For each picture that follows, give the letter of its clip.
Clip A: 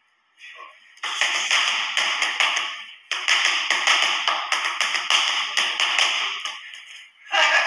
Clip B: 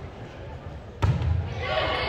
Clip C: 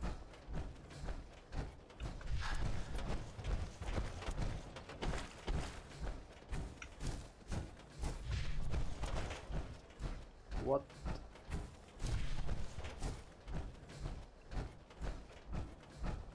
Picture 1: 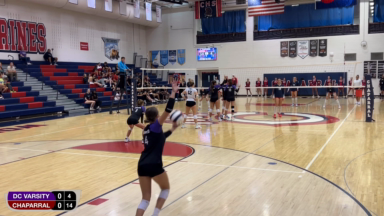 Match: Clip B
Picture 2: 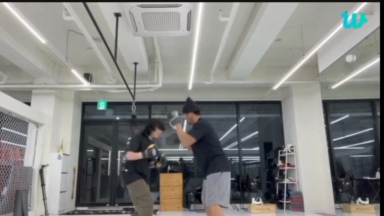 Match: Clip A